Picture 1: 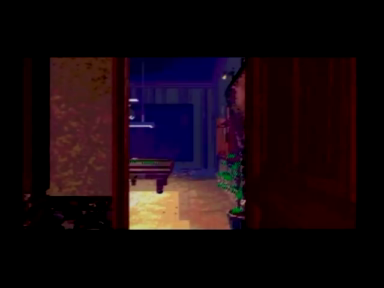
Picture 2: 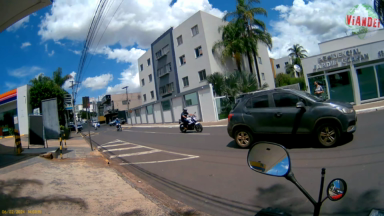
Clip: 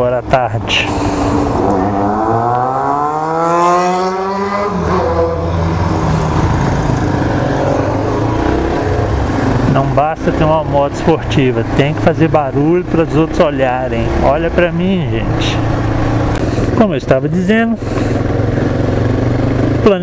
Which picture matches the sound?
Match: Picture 2